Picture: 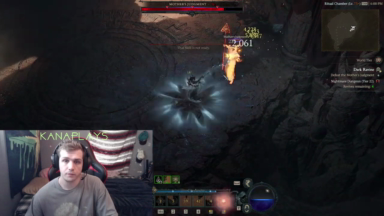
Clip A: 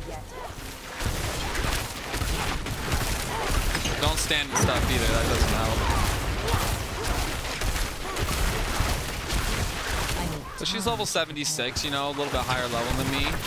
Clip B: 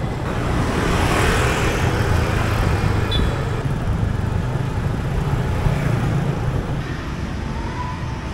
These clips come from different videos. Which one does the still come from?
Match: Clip A